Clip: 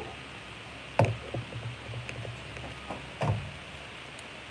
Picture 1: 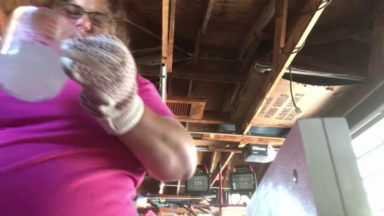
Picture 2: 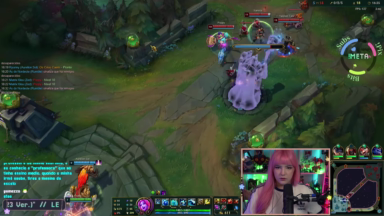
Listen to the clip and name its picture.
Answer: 1